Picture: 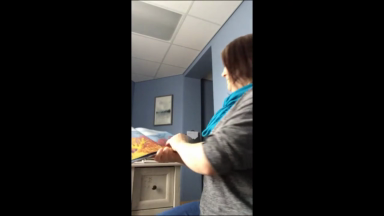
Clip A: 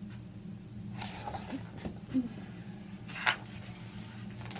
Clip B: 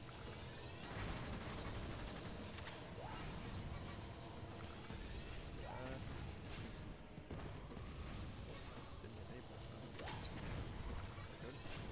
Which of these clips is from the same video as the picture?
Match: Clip A